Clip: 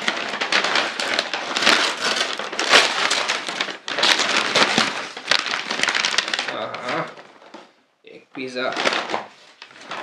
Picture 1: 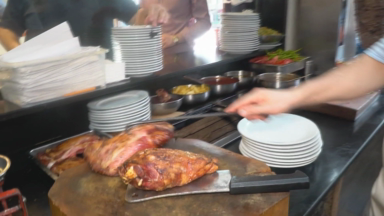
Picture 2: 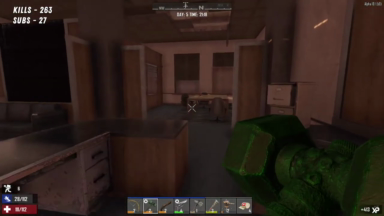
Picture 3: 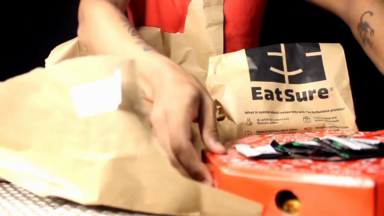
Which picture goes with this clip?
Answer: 3